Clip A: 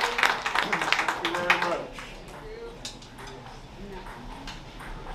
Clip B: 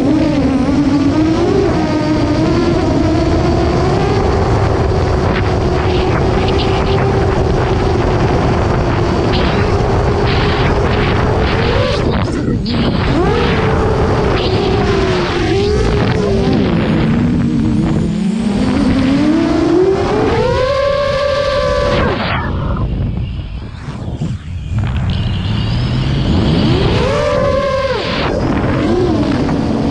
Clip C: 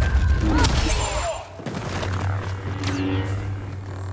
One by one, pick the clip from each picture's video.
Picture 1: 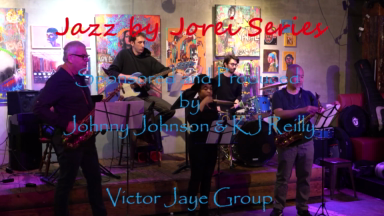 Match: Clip A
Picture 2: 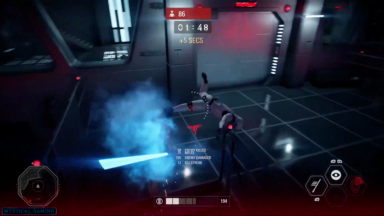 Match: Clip C